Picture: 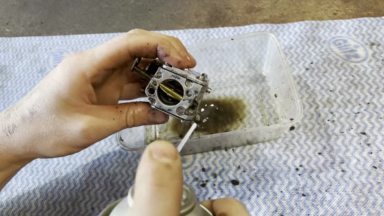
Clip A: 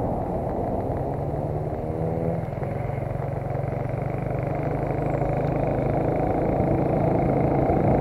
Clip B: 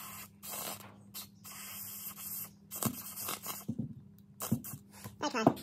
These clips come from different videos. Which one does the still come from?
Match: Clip B